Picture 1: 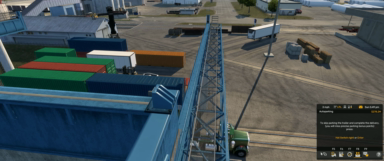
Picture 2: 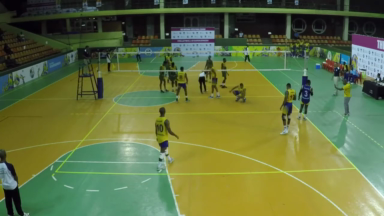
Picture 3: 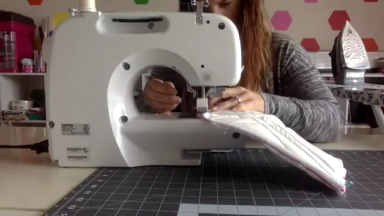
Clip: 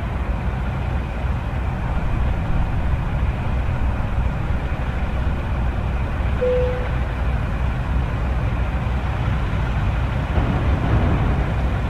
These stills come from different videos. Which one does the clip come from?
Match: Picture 1